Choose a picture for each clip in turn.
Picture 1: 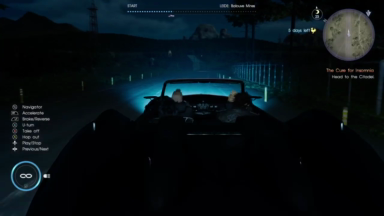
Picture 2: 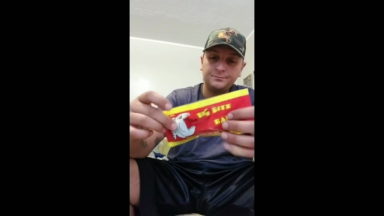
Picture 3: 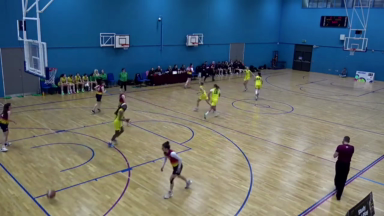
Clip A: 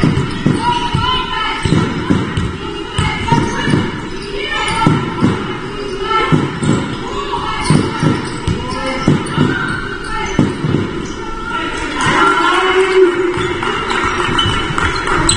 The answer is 3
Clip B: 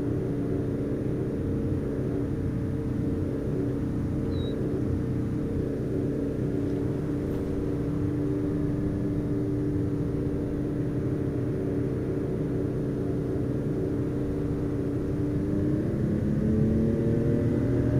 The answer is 1